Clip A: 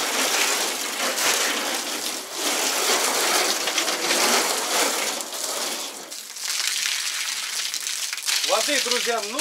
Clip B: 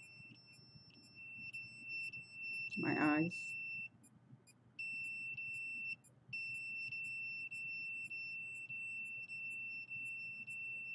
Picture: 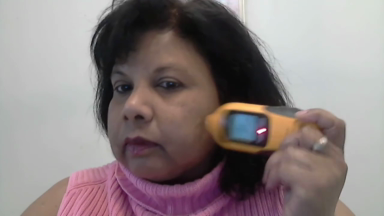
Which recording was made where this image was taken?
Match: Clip B